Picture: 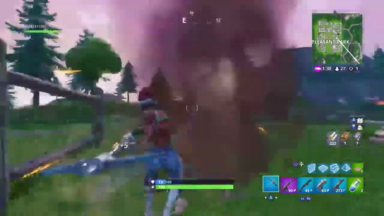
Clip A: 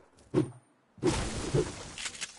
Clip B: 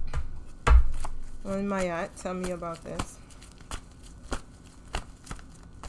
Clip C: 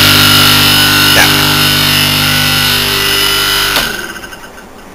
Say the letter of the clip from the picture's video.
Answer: A